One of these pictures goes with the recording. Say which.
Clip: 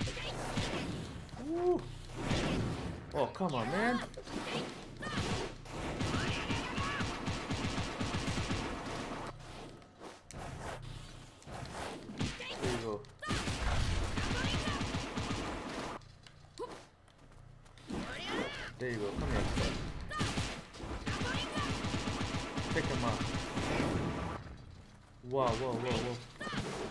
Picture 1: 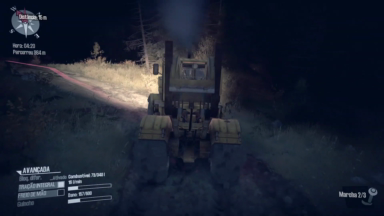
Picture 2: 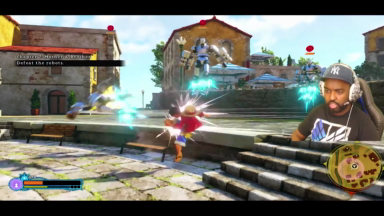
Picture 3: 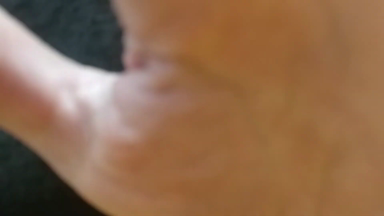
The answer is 2